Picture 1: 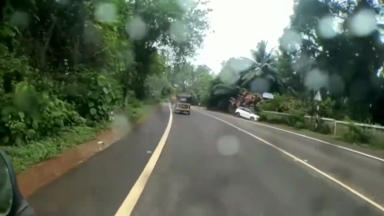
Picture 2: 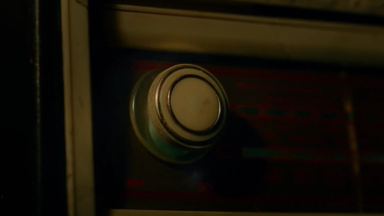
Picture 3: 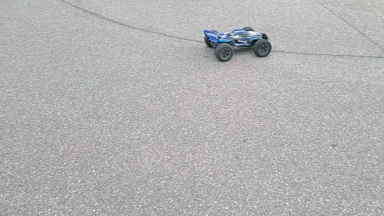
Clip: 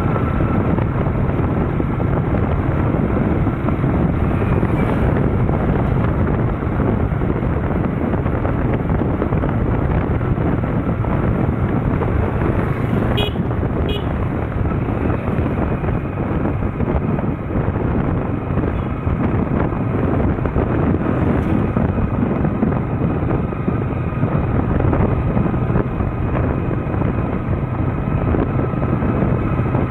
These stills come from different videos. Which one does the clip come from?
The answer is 1